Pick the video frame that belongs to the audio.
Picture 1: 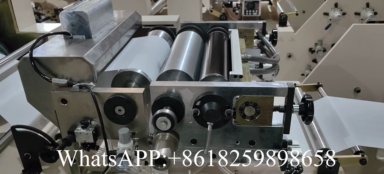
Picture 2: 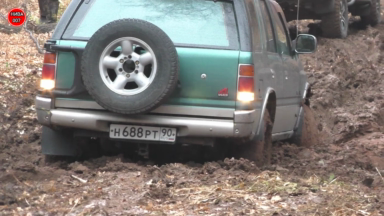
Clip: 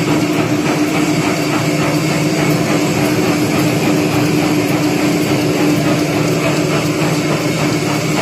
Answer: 1